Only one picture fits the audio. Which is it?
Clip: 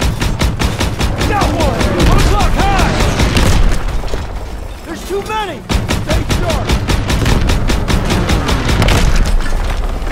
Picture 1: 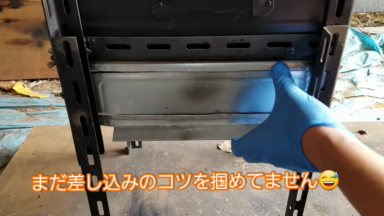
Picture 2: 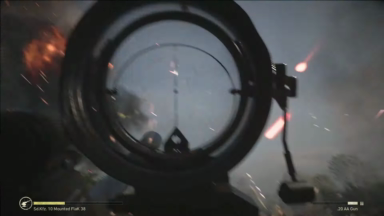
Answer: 2